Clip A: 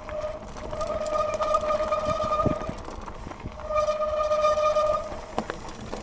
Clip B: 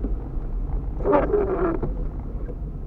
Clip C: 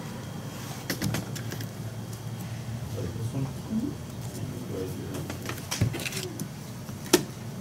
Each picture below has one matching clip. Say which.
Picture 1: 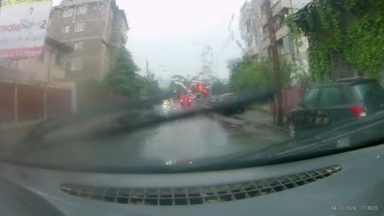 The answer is B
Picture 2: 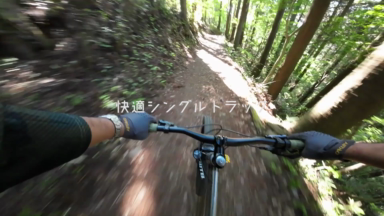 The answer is A